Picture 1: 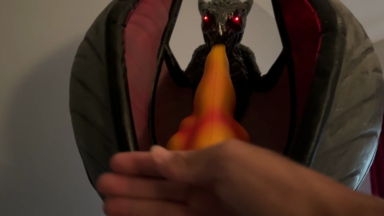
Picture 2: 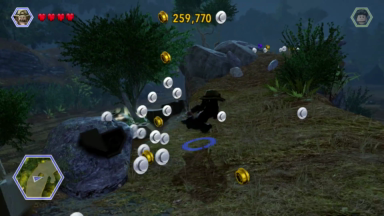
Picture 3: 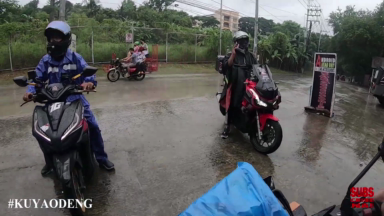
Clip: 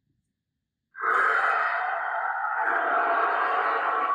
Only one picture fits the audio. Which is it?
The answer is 1